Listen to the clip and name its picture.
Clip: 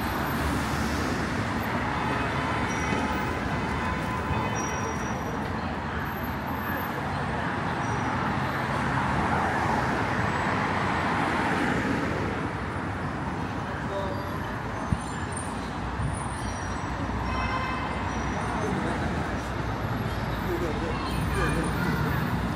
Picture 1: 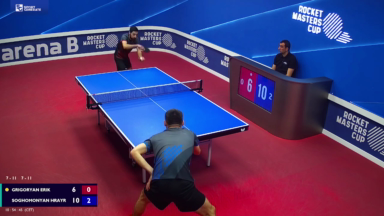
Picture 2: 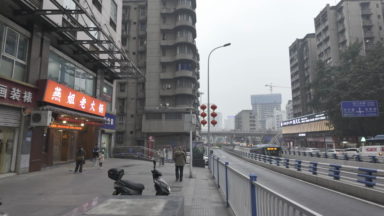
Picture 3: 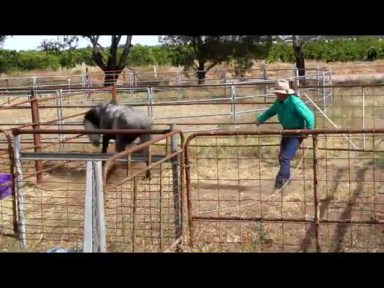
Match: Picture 2